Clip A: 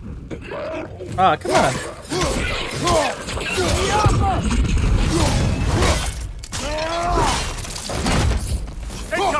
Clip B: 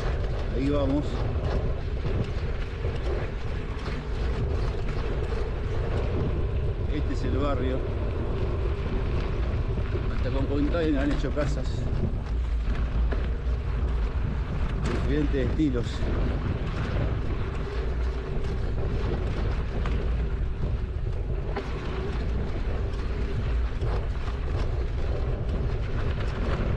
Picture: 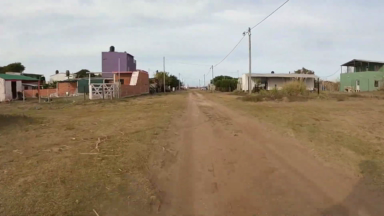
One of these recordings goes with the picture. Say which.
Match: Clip B